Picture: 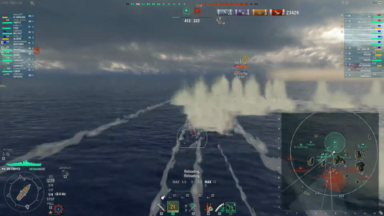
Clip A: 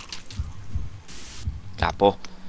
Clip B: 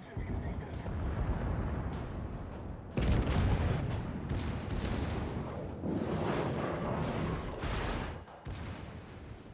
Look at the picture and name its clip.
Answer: B